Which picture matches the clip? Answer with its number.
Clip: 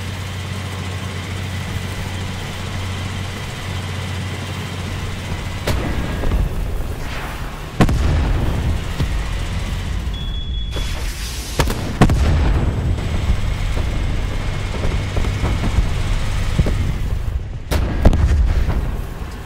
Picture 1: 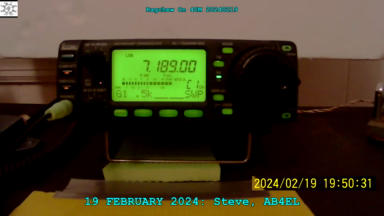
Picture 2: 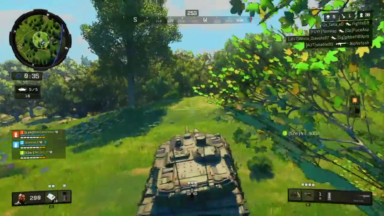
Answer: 2